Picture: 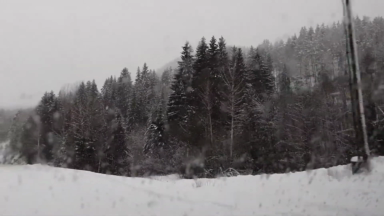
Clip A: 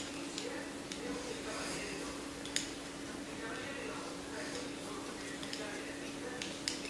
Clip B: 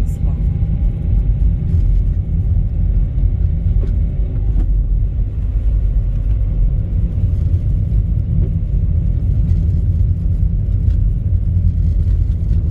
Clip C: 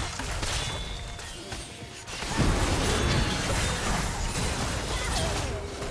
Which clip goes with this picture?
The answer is B